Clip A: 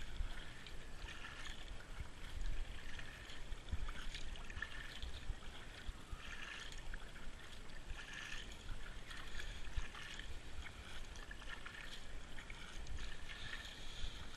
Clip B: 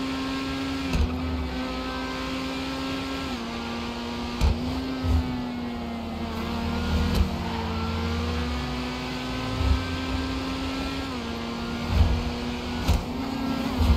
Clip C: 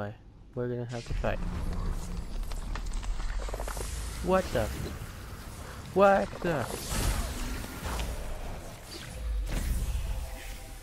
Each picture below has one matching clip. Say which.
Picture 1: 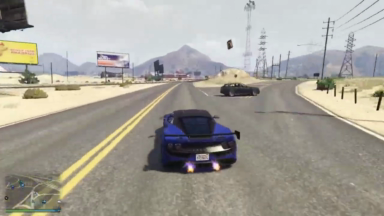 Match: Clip B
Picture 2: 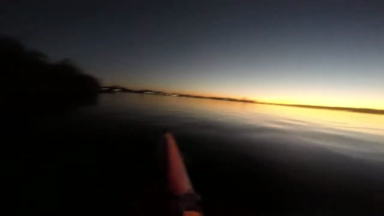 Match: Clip A